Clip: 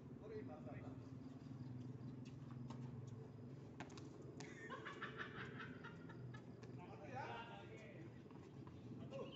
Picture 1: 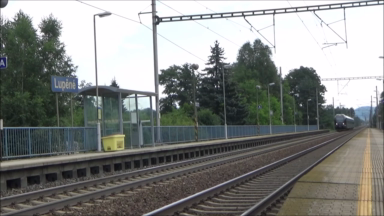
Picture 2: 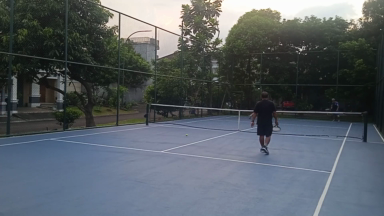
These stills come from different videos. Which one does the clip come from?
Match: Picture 2